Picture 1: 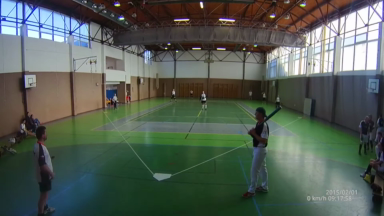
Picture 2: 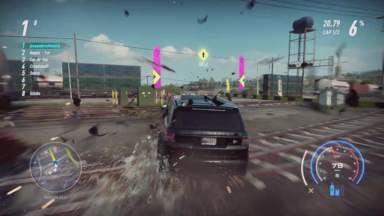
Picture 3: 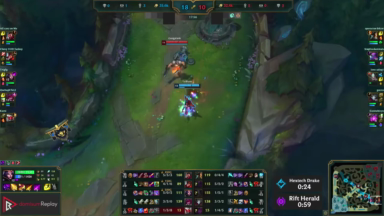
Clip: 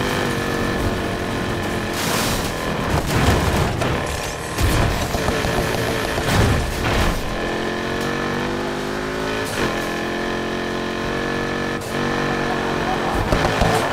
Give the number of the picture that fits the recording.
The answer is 2